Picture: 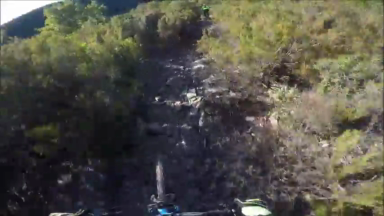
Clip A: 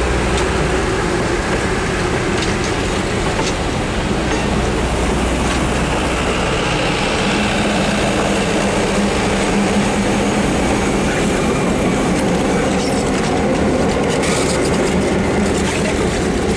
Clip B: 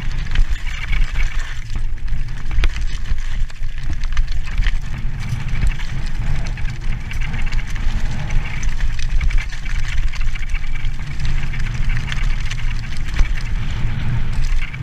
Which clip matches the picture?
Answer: B